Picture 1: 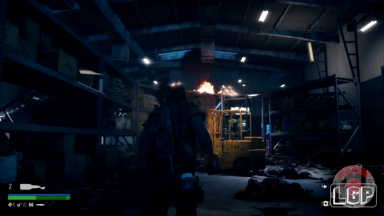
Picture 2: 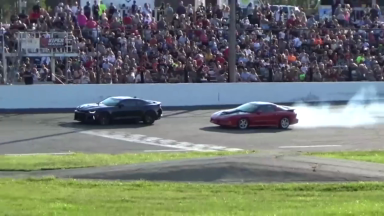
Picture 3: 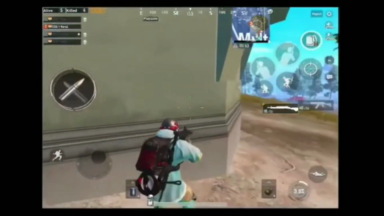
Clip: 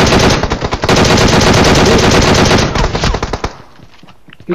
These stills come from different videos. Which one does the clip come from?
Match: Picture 3